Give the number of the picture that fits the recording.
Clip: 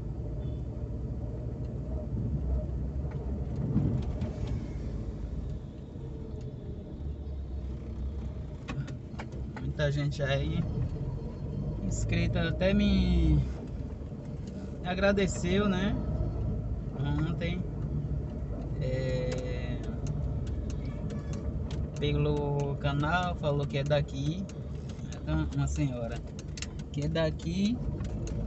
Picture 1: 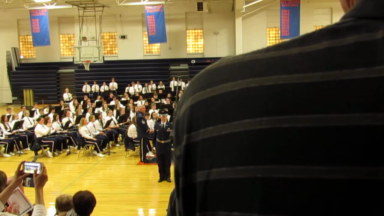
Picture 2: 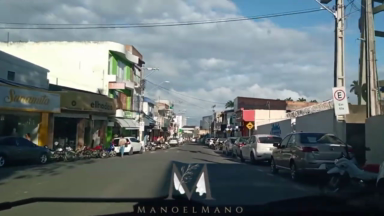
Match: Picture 2